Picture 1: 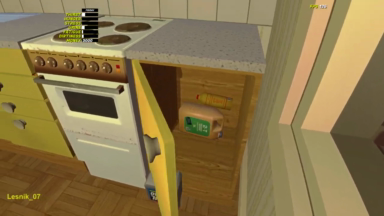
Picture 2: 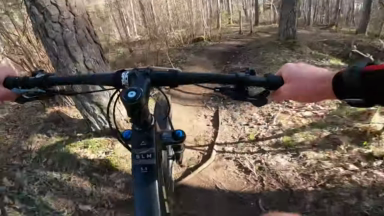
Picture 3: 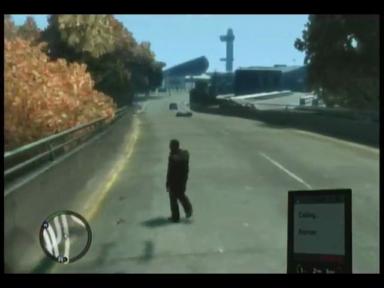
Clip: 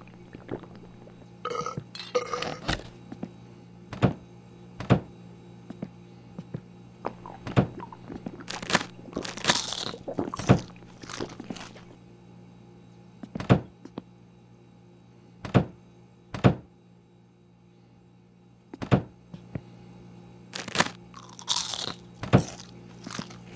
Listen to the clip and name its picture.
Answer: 1